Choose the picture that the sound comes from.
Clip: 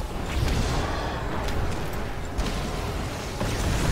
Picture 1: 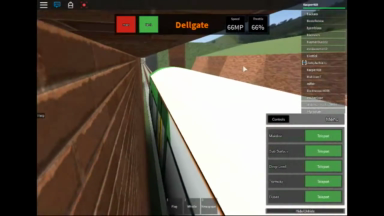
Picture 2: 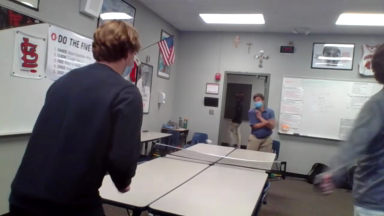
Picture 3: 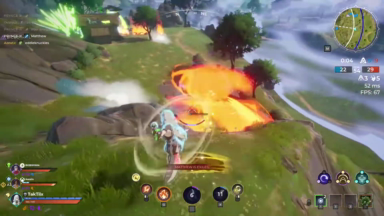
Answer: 3